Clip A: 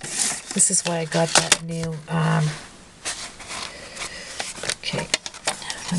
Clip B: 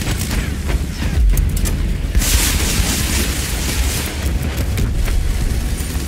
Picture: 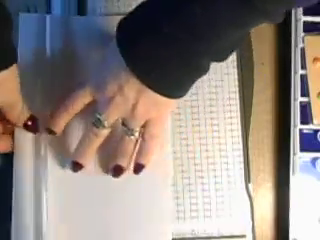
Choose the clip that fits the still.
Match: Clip A